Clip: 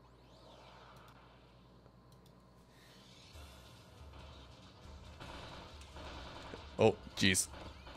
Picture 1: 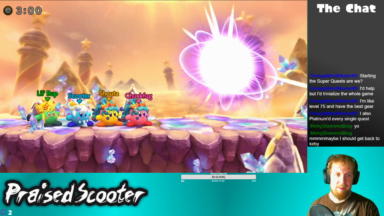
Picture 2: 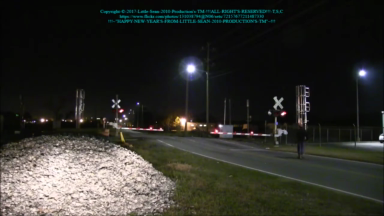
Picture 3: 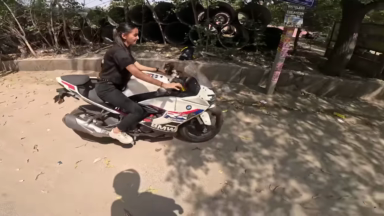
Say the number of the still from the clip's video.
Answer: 1